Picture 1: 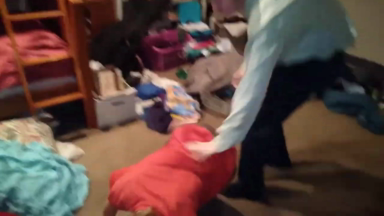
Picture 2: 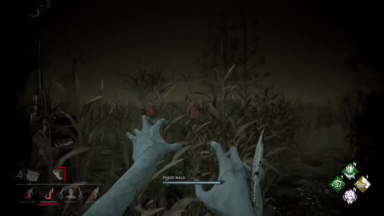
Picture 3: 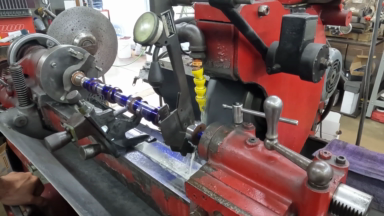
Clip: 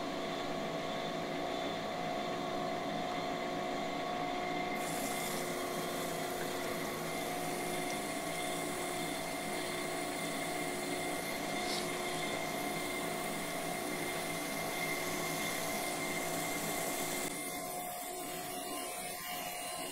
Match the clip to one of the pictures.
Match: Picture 3